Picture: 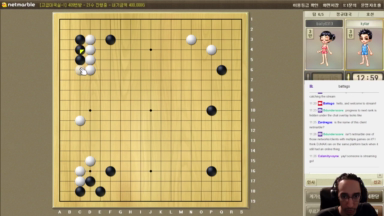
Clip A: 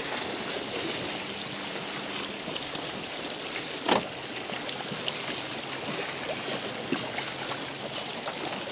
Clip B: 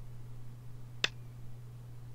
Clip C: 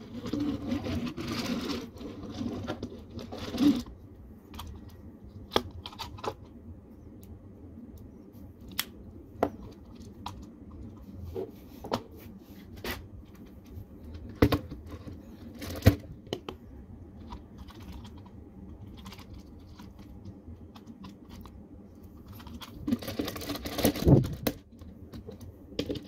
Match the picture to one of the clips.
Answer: B